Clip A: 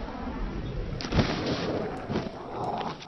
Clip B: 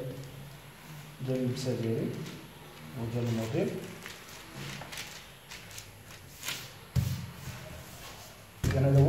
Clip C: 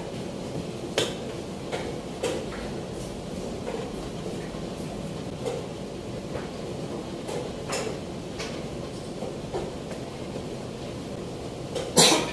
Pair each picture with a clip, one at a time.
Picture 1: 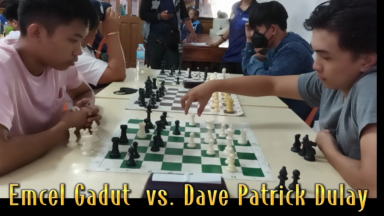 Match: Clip C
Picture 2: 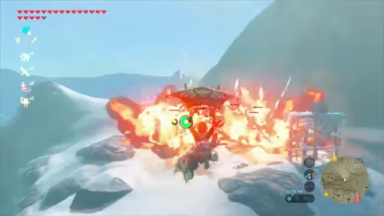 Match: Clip A